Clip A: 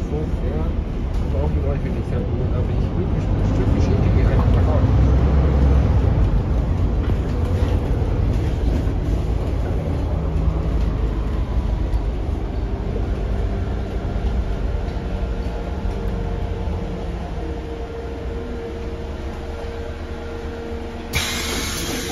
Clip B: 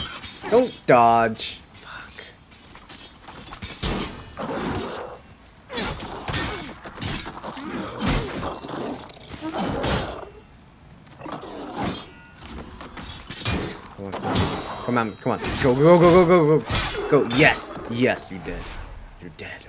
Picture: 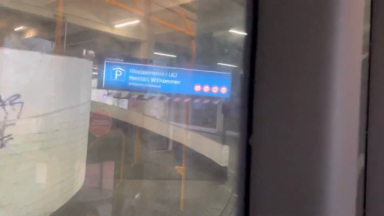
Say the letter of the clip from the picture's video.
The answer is A